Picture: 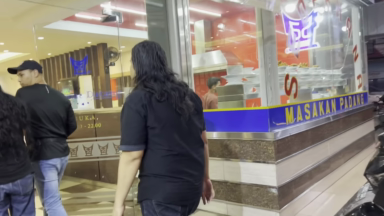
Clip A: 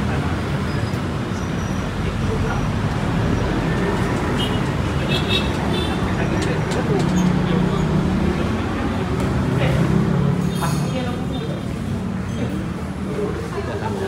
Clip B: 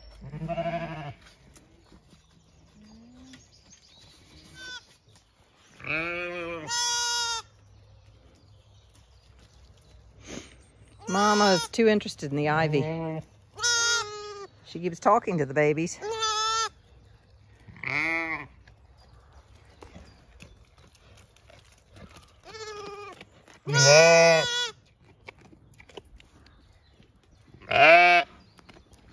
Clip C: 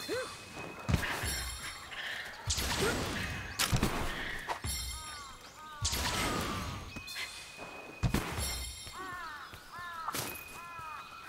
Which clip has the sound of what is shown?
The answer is A